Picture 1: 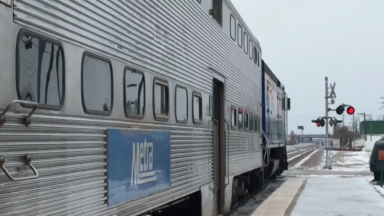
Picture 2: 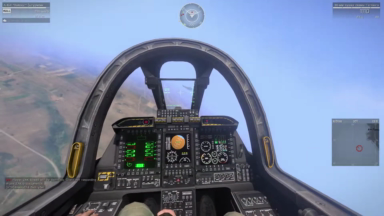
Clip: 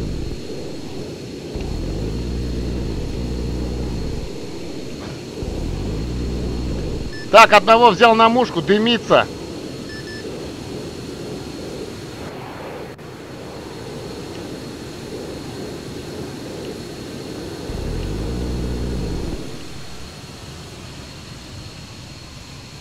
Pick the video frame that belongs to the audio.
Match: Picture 2